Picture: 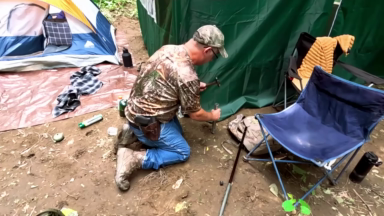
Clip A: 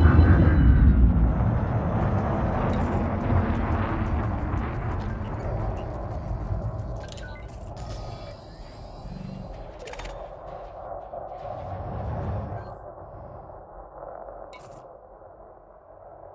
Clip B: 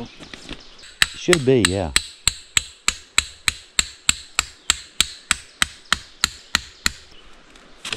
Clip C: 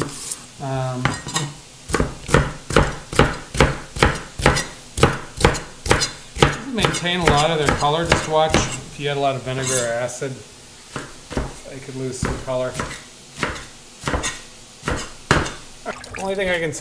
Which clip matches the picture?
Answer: B